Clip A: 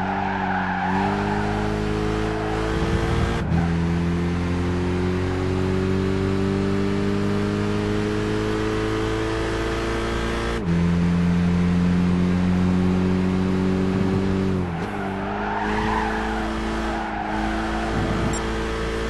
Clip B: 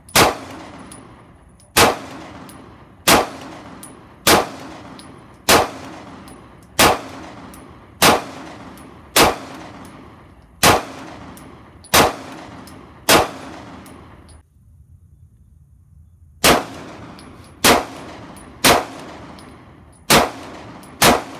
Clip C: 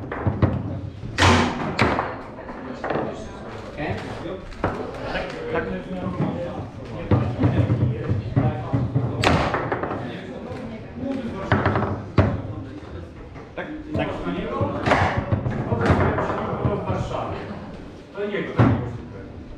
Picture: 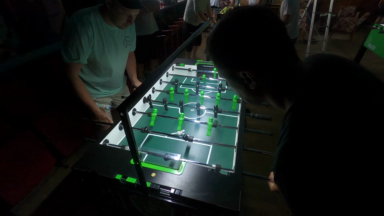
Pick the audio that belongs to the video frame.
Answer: C